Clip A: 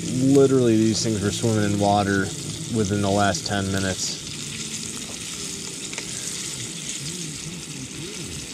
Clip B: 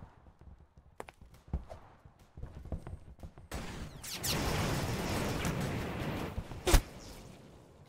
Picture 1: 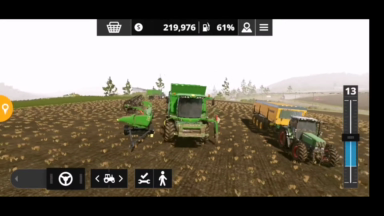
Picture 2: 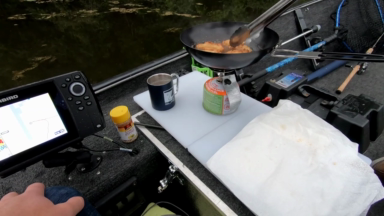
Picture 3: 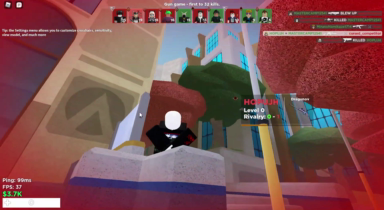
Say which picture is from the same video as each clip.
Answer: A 2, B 3